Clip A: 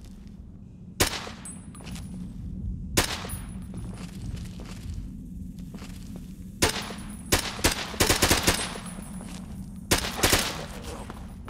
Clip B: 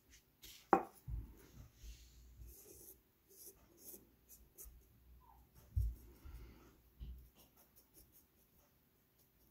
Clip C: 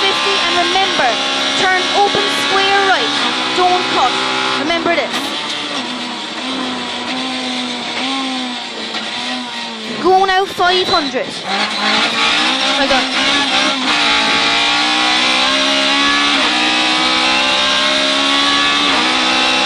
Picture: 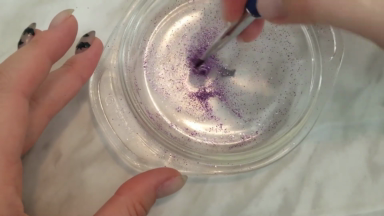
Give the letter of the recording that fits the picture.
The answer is B